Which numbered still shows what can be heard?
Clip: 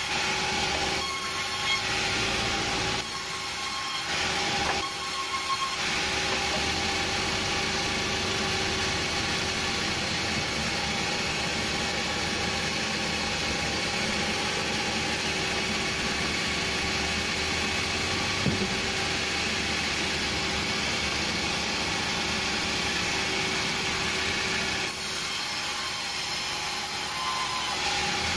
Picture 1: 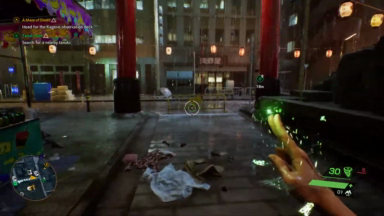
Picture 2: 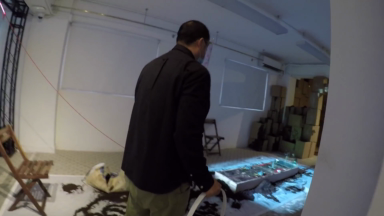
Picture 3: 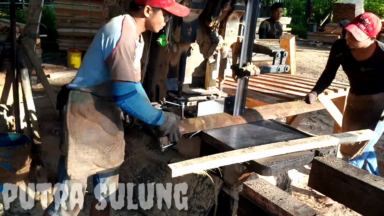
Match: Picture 3